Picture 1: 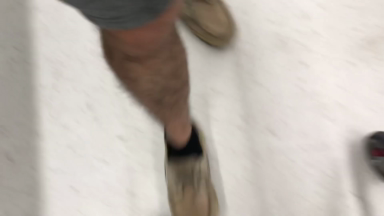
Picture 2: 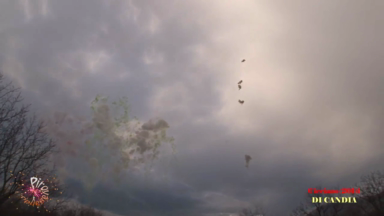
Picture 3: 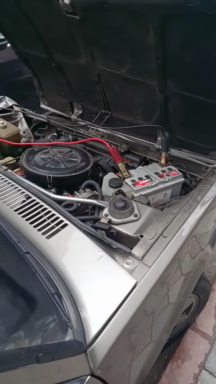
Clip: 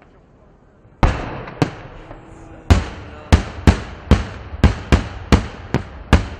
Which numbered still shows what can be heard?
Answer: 2